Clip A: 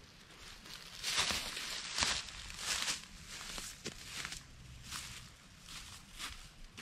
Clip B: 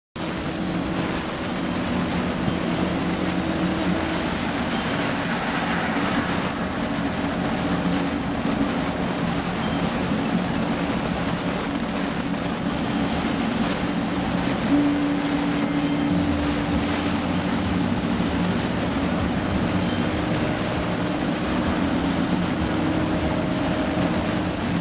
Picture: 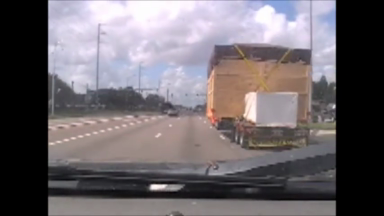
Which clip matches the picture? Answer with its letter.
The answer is B